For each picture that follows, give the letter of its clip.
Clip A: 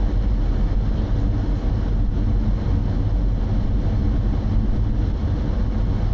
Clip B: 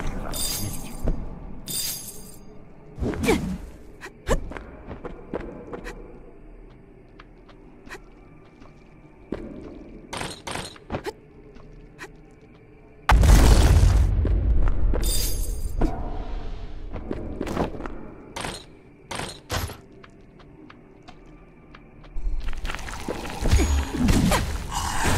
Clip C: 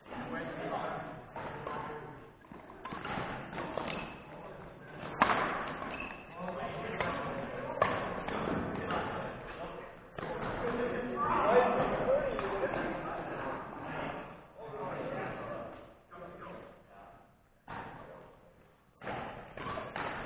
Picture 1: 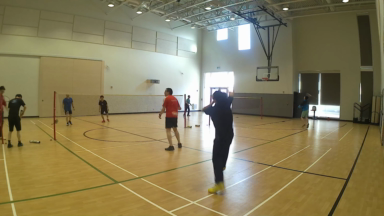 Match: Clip C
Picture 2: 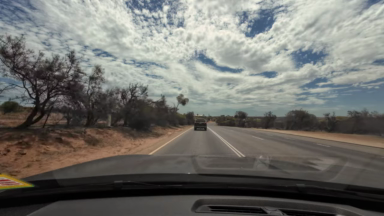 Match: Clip A